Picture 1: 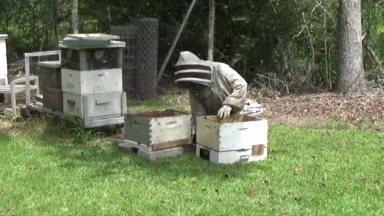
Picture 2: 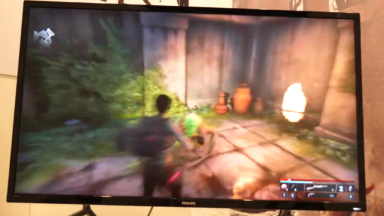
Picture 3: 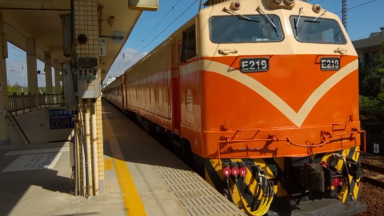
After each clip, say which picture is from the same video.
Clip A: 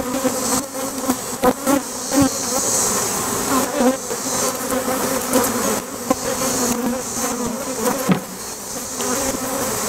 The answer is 1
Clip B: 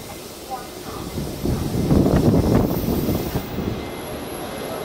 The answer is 3